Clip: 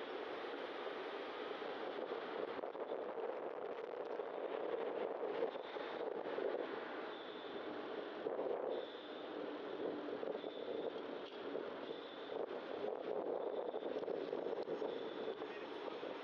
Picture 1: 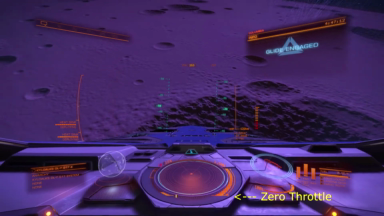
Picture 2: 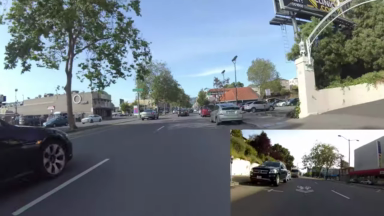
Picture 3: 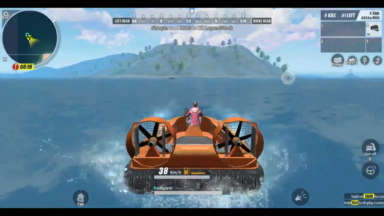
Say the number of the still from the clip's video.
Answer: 2